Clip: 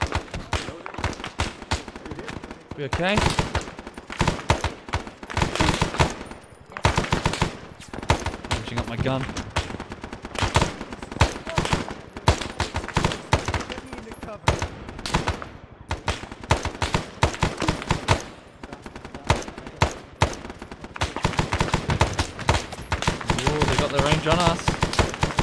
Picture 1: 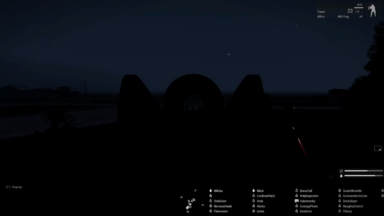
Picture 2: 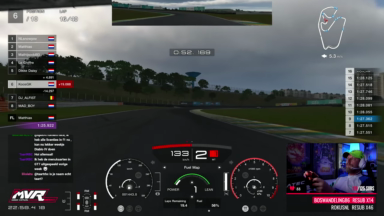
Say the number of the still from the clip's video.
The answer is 1